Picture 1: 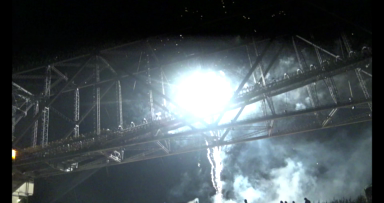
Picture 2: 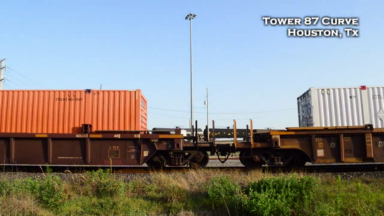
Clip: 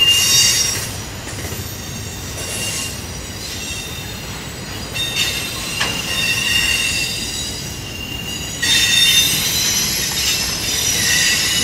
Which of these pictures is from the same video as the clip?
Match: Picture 2